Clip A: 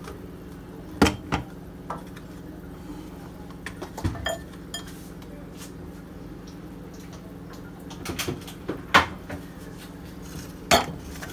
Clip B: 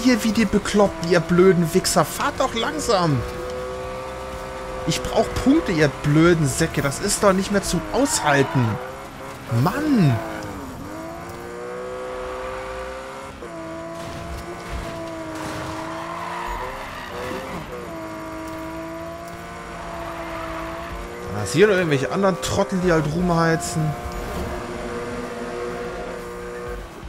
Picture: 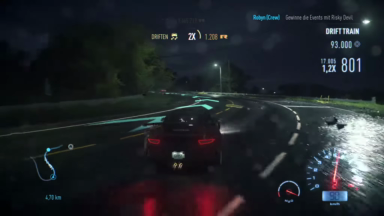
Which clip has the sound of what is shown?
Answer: B